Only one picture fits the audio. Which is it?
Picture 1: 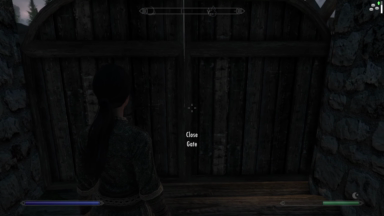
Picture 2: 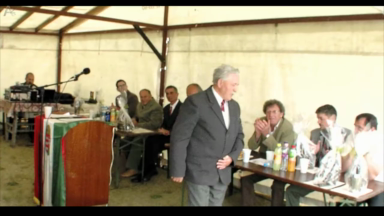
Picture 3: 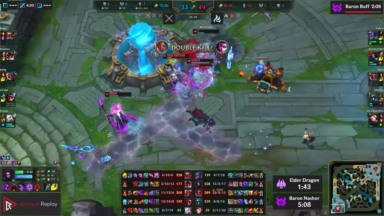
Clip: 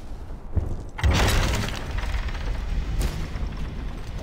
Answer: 1